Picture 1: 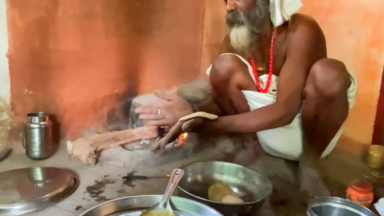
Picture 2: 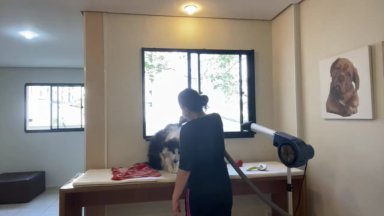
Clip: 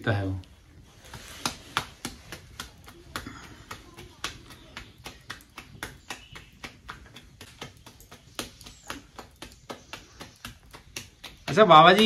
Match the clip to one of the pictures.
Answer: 1